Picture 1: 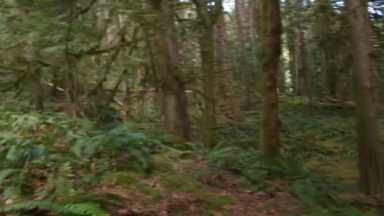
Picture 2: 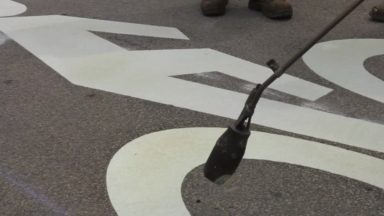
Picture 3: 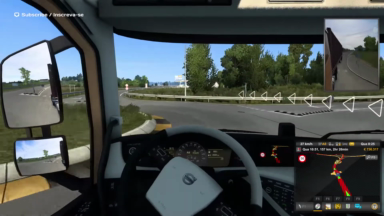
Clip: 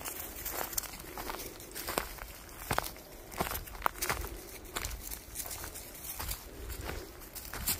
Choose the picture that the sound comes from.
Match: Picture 1